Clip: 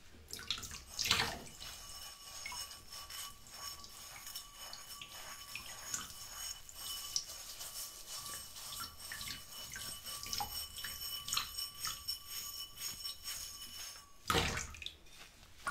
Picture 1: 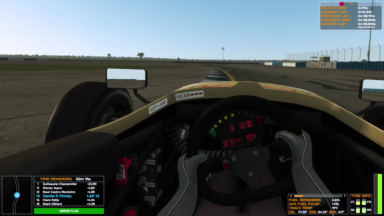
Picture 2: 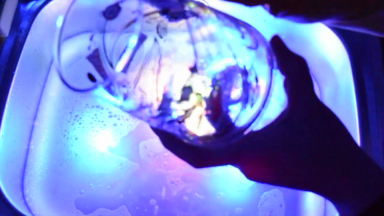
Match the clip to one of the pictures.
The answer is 2